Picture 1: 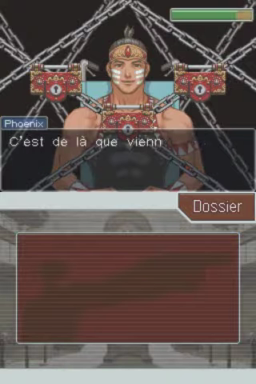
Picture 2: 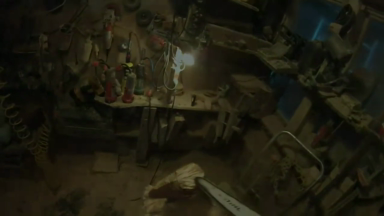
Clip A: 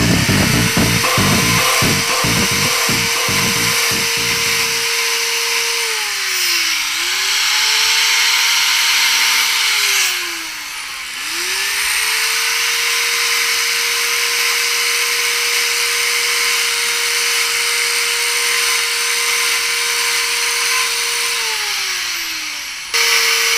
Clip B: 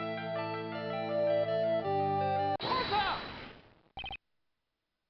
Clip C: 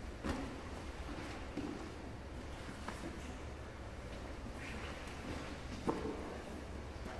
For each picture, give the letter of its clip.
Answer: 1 B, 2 A